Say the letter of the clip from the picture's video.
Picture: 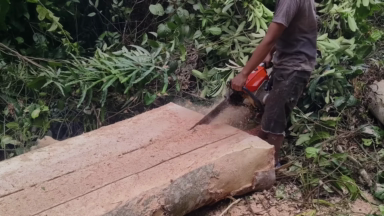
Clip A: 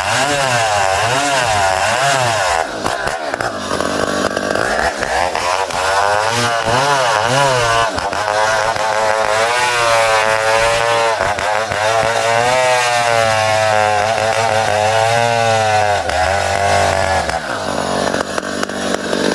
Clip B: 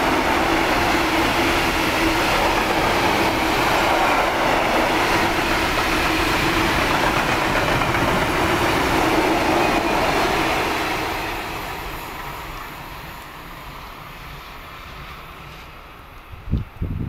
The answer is A